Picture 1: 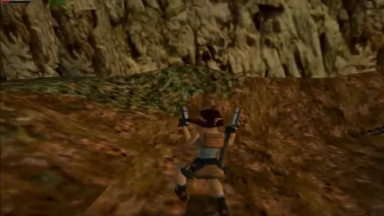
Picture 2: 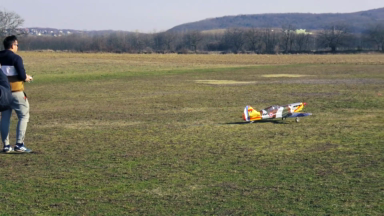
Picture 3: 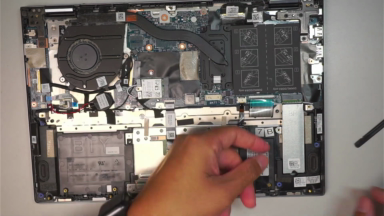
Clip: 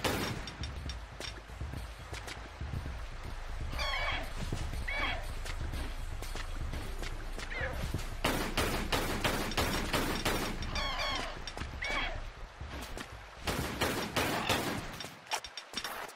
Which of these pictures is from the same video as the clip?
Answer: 1